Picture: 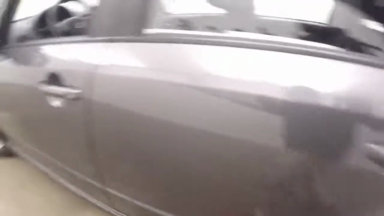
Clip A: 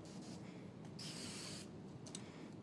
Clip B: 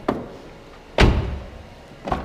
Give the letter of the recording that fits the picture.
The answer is B